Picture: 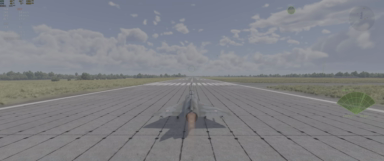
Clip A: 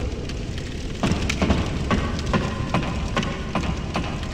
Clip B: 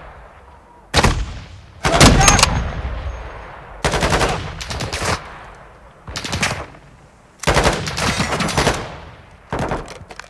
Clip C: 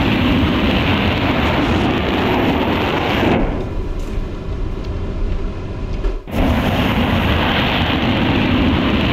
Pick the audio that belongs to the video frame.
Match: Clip C